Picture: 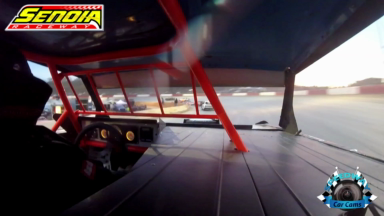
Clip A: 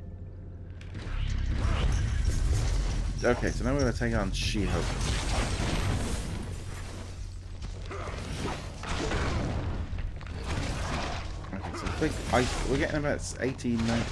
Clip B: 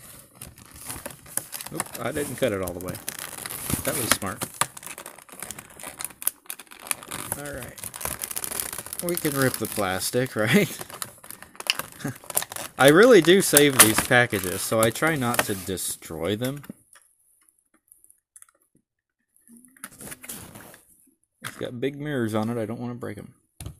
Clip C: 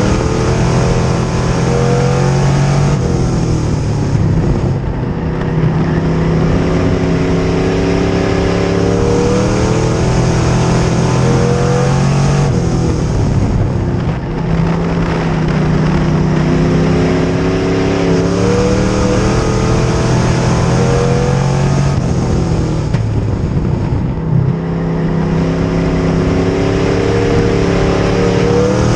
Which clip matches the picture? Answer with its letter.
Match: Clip C